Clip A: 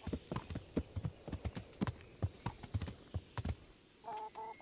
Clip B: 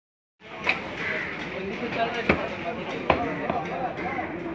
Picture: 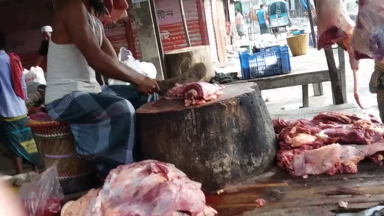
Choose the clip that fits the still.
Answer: B